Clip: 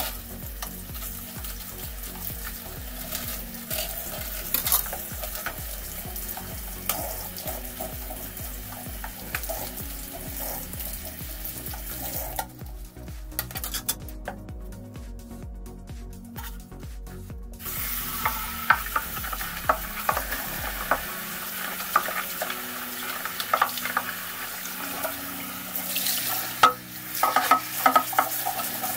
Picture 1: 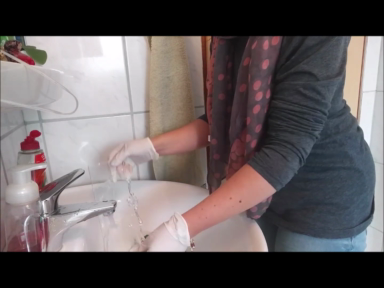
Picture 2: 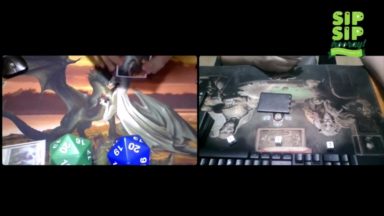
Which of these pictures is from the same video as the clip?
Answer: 1